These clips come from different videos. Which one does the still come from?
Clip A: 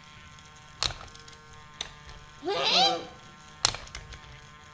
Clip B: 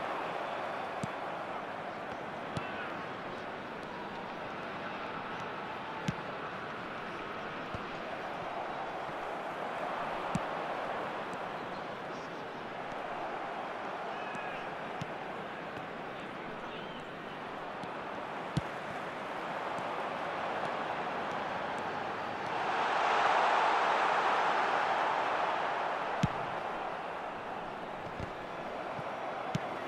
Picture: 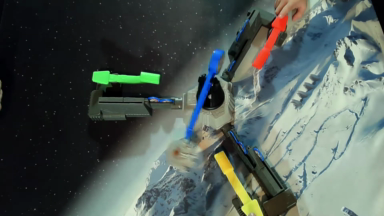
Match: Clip A